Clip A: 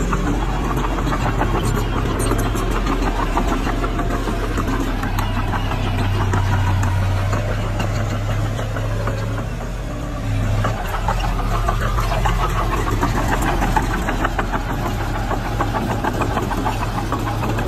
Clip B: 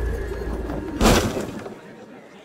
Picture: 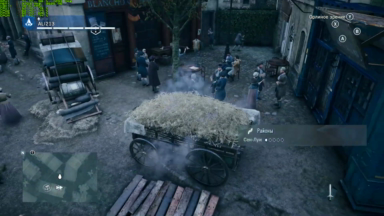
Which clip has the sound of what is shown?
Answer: B